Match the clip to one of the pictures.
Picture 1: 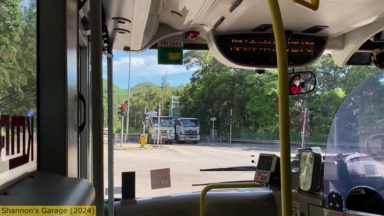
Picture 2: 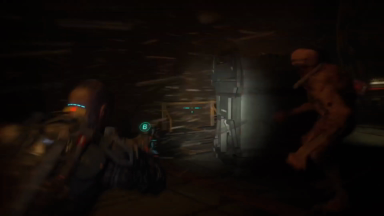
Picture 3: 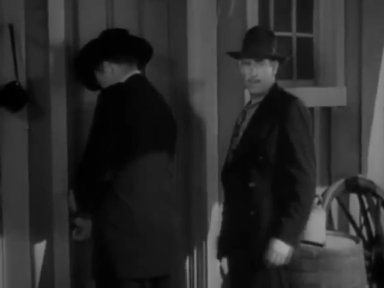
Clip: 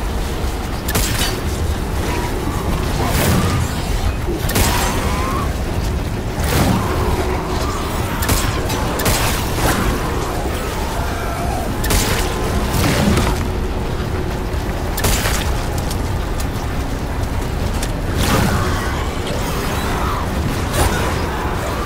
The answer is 2